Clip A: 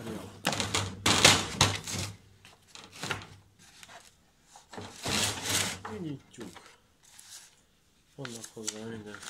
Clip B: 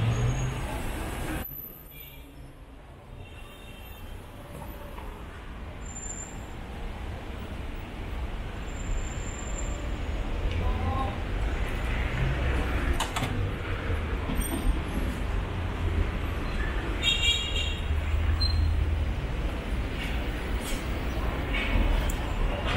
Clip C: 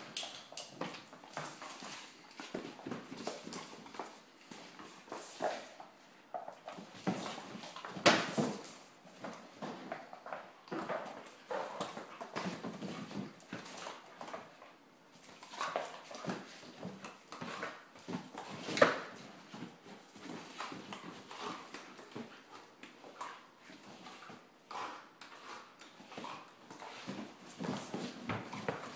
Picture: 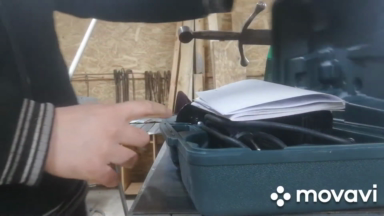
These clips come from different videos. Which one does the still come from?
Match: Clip A